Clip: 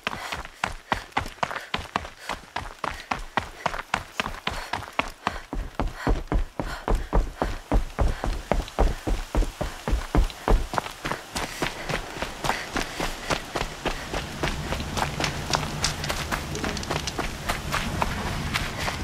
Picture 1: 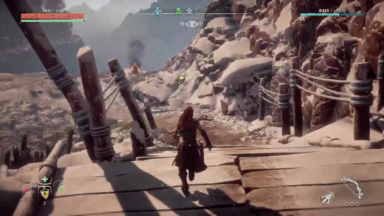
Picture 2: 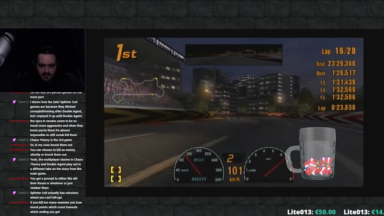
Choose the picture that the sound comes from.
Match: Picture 1